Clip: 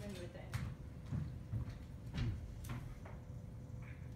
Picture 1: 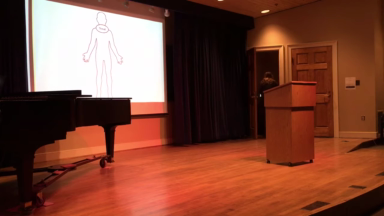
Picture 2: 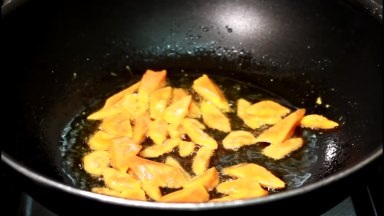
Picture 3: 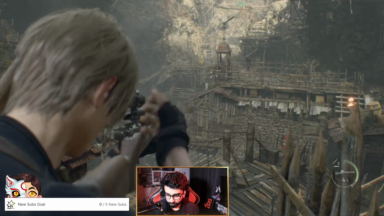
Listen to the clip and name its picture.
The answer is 1